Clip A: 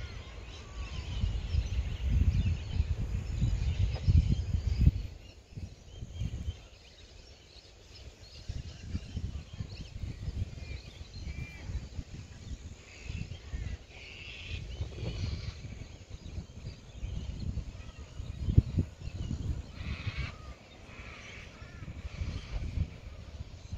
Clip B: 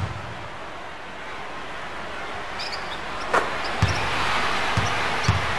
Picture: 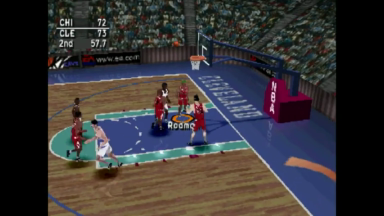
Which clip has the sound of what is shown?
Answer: B